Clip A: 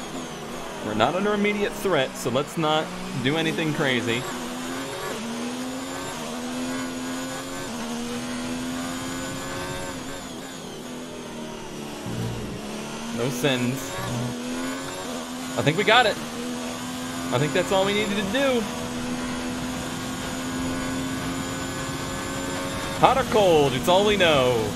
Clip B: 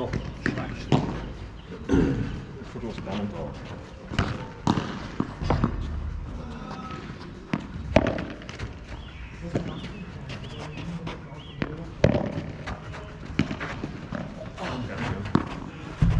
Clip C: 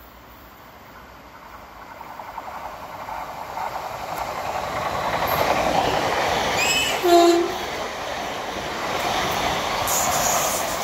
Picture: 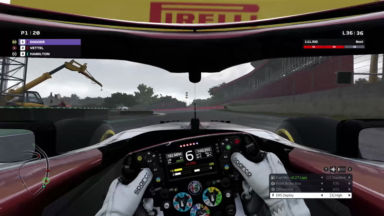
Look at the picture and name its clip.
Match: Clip A